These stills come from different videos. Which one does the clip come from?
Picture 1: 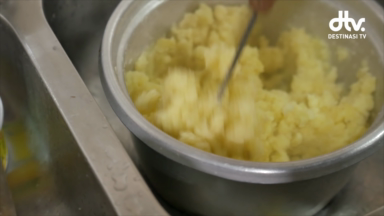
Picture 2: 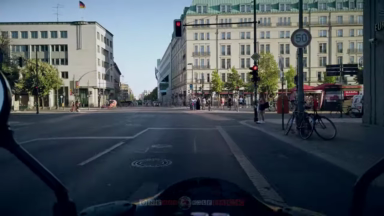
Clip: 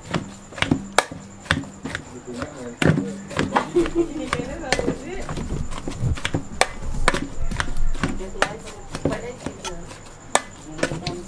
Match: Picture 1